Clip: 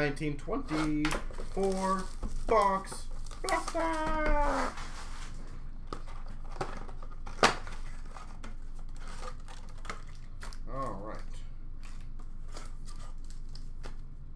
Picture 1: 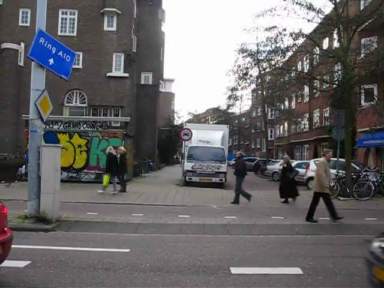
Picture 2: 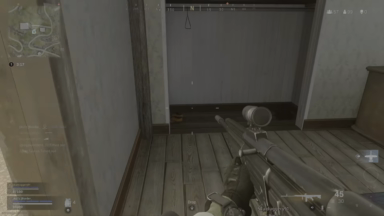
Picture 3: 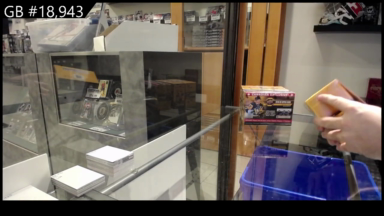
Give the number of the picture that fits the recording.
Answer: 3